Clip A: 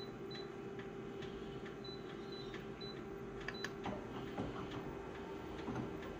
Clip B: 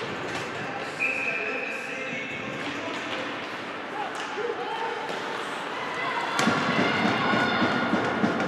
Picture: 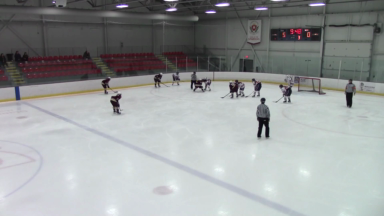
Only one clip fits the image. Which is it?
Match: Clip B